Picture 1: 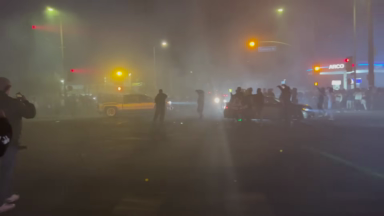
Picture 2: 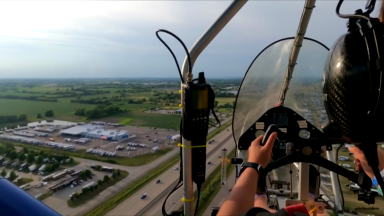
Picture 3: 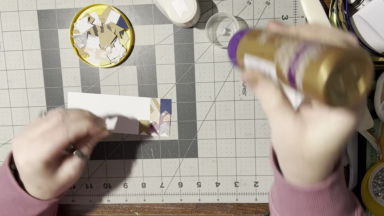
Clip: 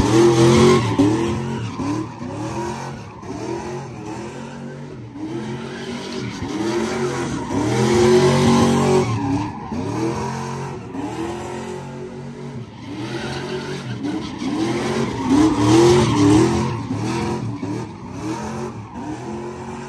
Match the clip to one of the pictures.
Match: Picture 1